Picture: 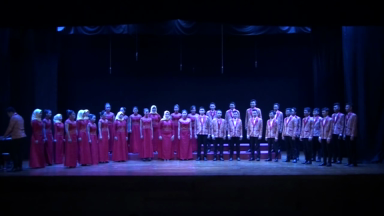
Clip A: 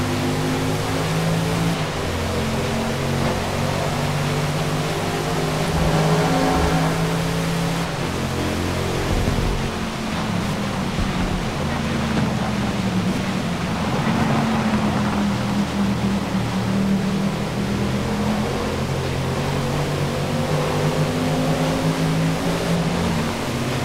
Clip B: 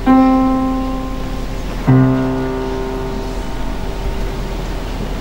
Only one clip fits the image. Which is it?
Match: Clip B